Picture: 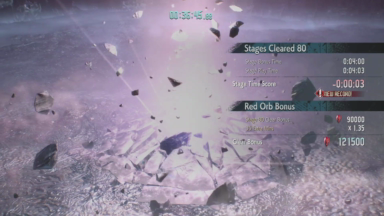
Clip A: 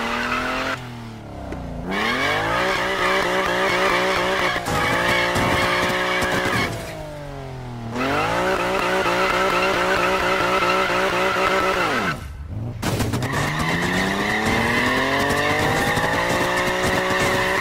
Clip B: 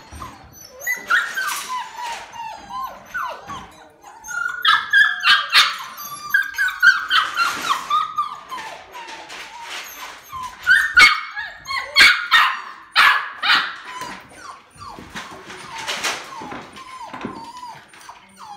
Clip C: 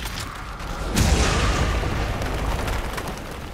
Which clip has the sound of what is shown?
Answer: C